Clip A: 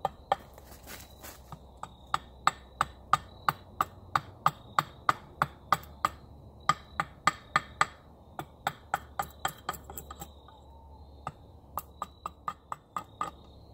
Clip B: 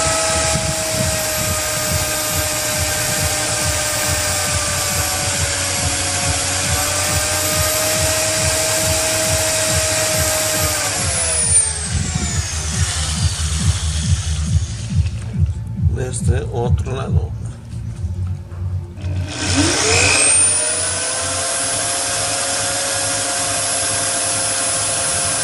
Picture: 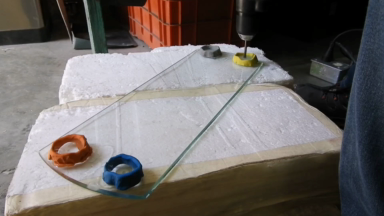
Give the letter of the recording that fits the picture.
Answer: B